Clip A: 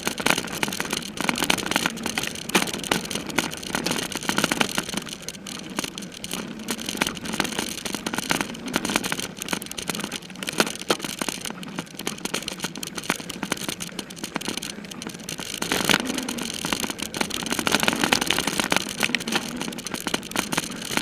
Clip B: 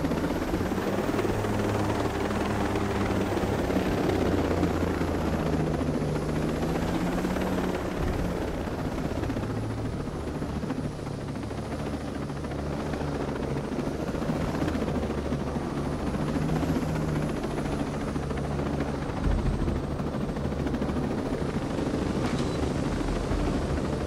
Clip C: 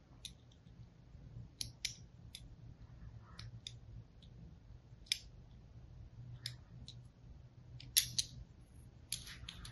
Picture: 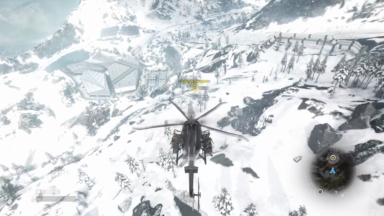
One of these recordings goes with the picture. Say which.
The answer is B